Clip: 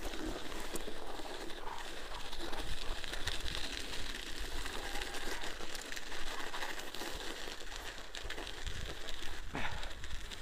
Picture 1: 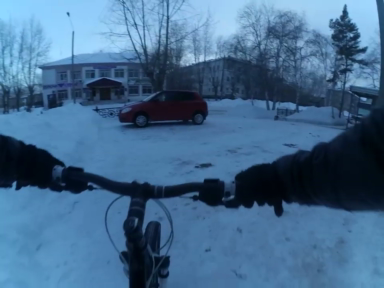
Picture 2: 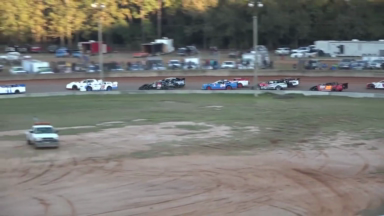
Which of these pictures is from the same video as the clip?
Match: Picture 1